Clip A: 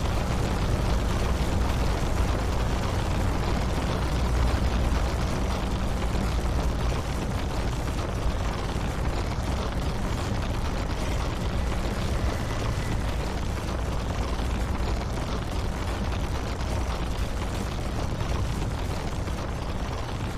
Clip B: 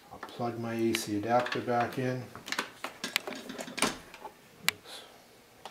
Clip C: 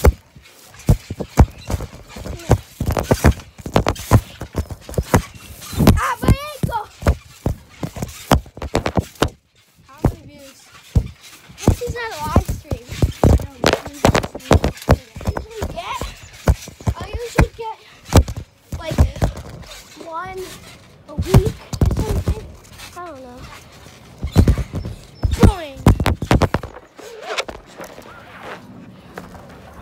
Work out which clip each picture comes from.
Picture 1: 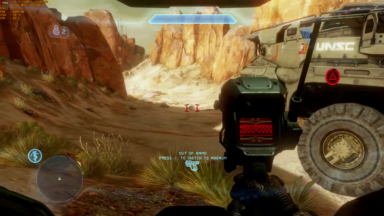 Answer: A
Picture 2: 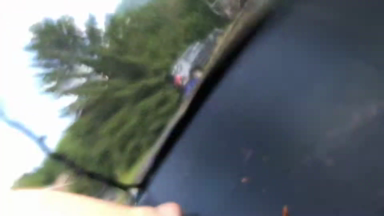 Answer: C